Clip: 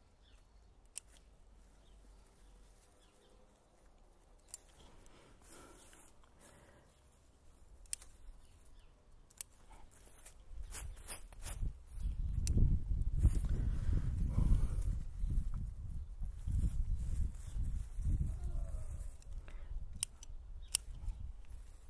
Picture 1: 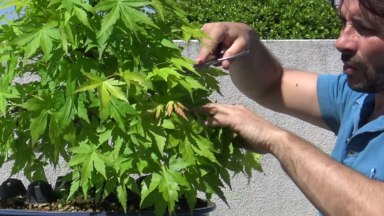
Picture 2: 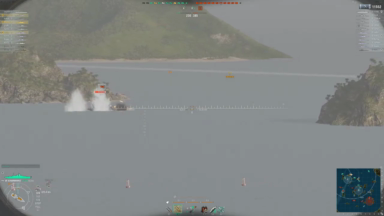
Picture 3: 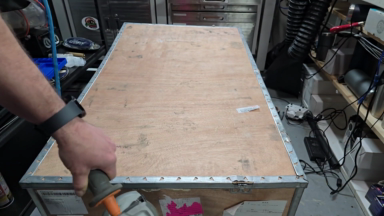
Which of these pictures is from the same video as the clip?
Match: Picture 1